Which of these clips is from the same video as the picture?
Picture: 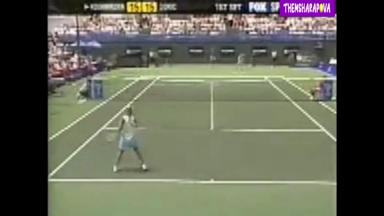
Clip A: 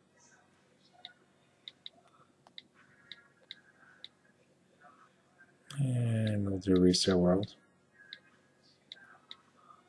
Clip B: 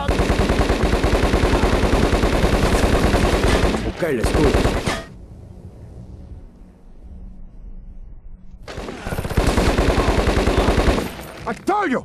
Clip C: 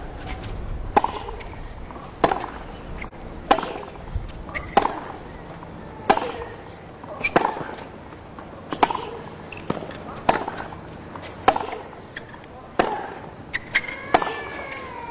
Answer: C